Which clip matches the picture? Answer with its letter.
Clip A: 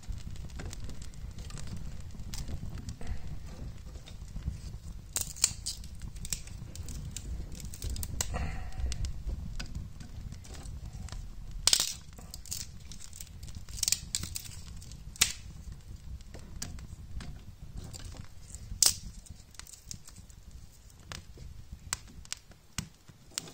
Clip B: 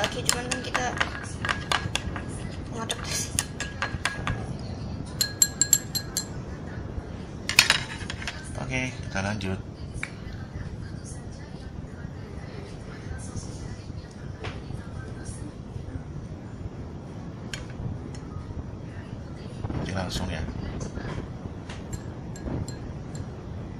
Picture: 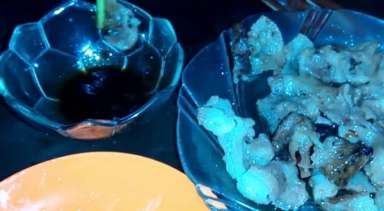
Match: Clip B